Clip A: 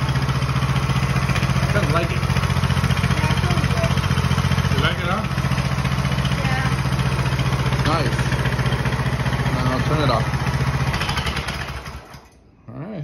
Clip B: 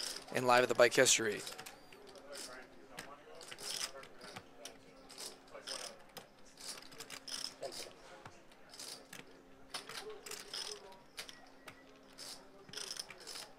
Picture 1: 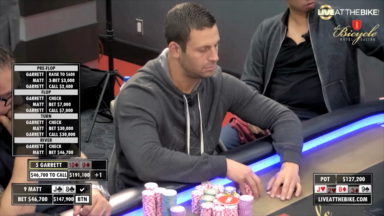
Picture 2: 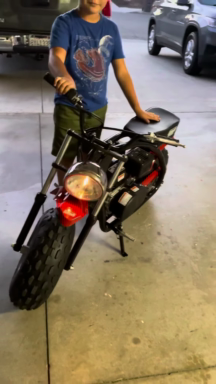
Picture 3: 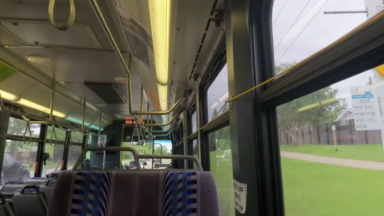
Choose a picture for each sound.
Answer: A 2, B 1